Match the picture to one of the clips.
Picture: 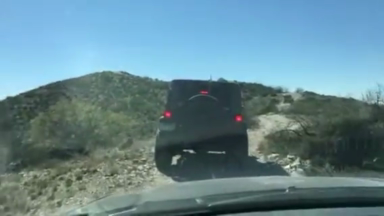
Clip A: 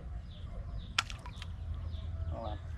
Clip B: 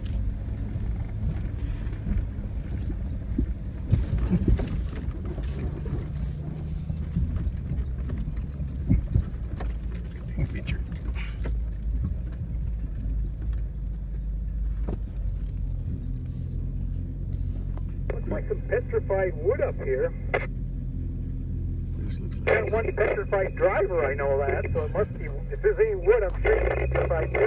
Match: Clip B